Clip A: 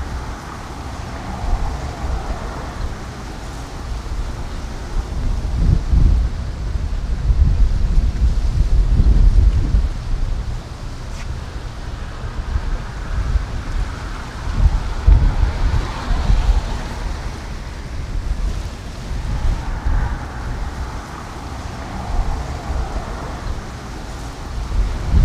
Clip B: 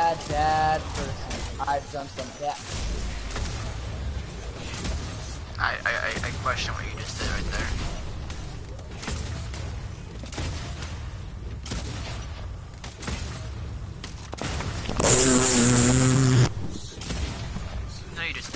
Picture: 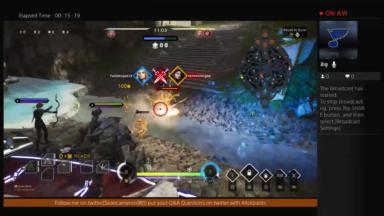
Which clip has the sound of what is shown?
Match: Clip B